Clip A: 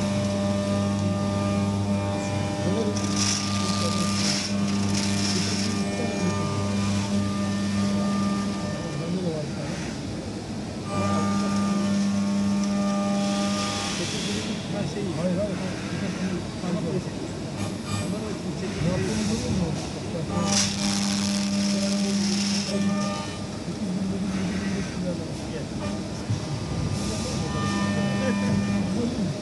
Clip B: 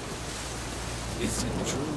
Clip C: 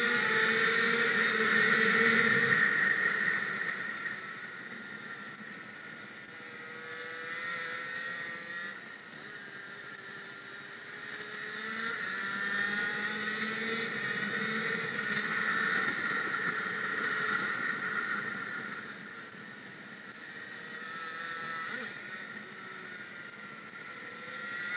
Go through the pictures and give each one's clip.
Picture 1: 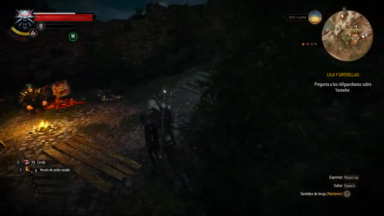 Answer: B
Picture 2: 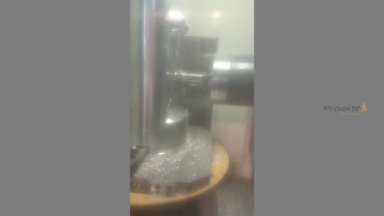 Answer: A